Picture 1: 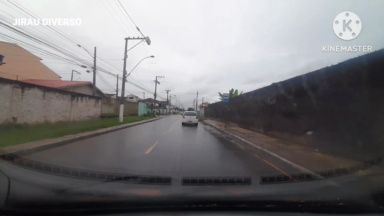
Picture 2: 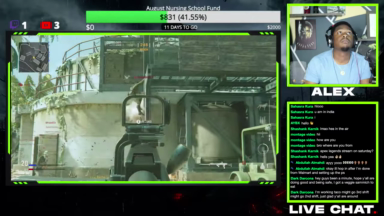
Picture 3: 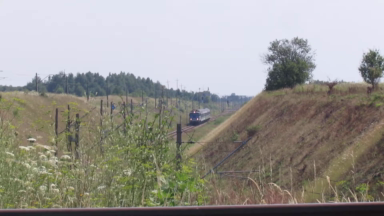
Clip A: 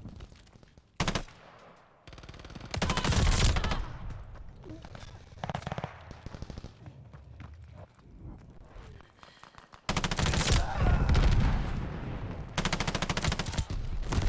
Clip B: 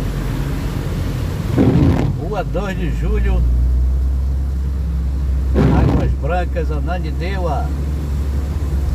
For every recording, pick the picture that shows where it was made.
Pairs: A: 2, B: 1